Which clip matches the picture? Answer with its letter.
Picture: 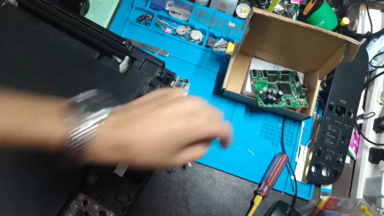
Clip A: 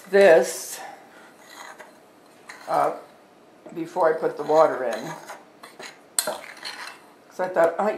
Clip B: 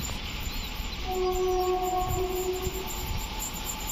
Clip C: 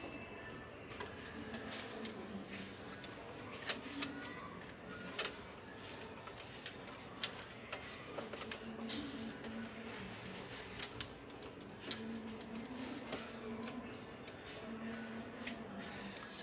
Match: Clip C